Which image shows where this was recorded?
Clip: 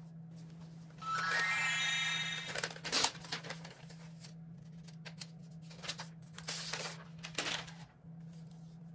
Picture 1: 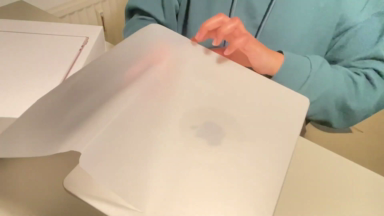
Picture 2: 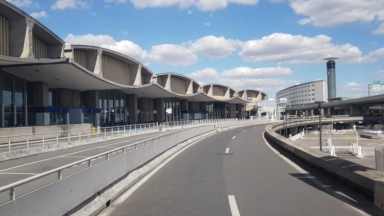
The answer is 1